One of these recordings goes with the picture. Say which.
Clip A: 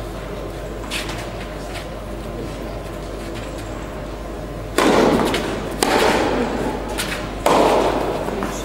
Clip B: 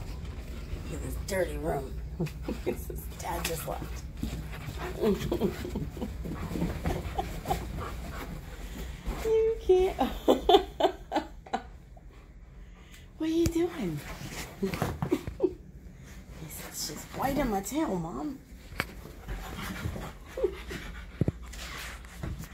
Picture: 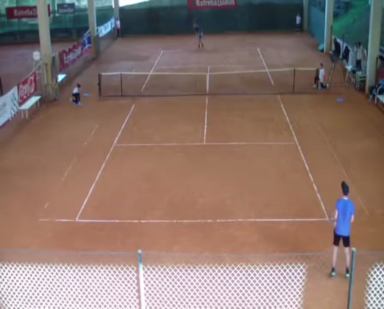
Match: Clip A